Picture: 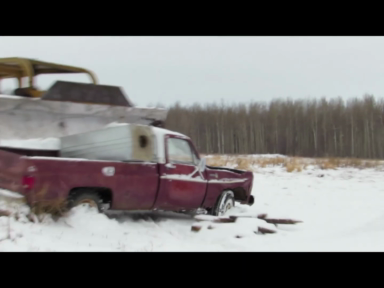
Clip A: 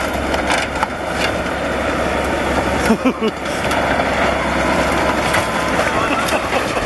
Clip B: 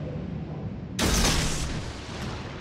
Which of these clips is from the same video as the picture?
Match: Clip A